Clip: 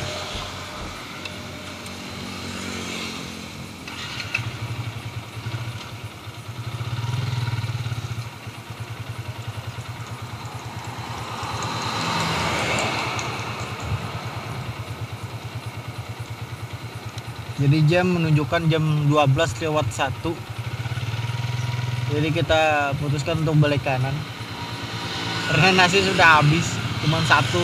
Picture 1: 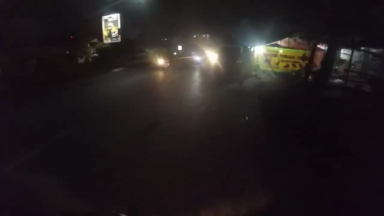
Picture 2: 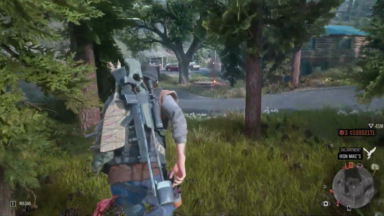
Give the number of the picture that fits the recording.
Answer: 1